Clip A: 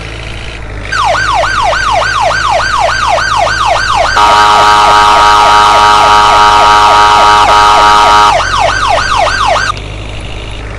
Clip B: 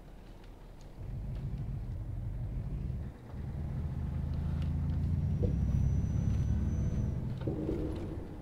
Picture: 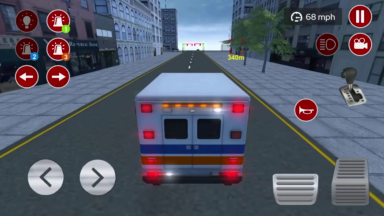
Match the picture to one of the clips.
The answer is A